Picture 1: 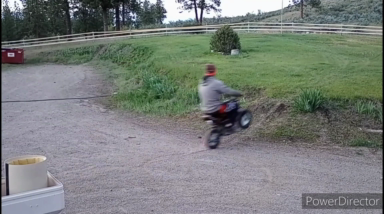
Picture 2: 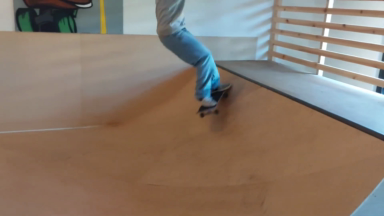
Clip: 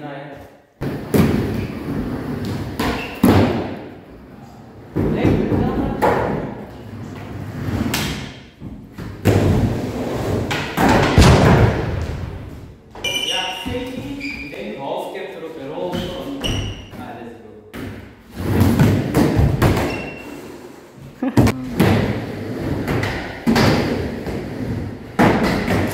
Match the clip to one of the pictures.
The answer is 2